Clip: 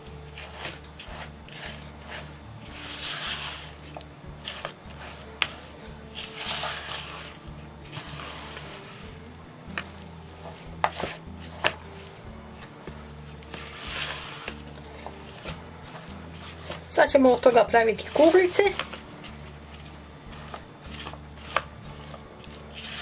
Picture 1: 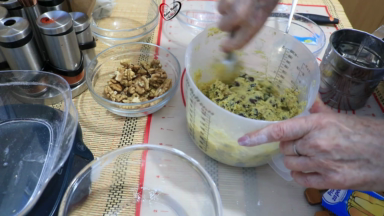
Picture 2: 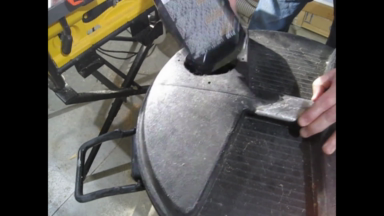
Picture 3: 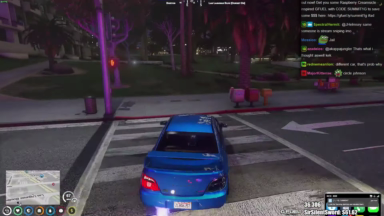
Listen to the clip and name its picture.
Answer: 1